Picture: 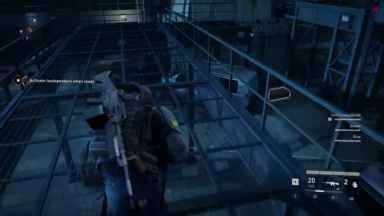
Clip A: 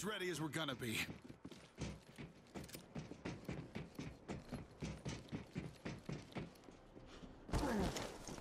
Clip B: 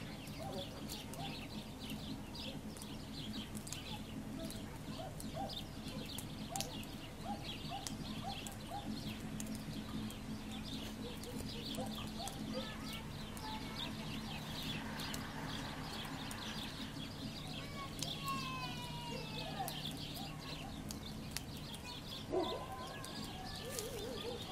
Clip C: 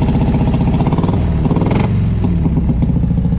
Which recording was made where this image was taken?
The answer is A